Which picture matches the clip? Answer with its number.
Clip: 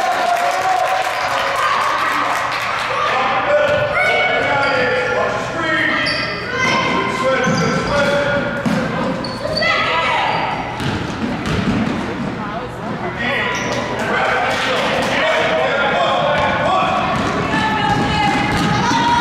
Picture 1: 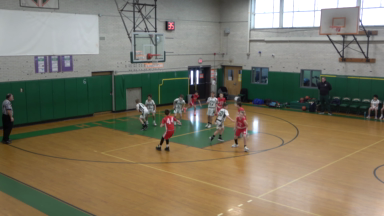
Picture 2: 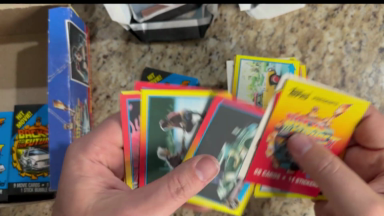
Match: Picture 1